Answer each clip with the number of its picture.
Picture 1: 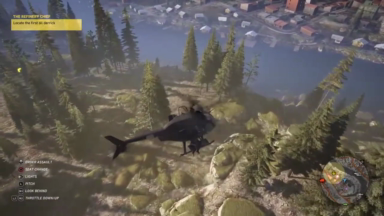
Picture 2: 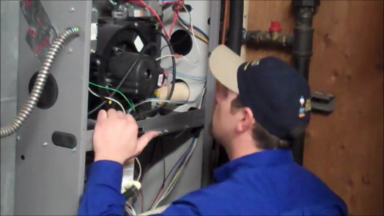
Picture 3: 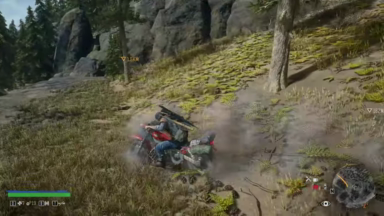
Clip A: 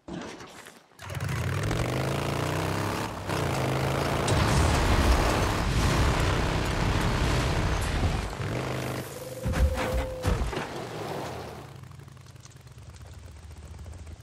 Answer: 3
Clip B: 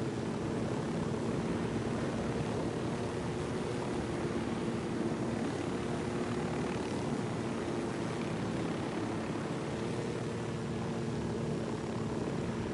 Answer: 1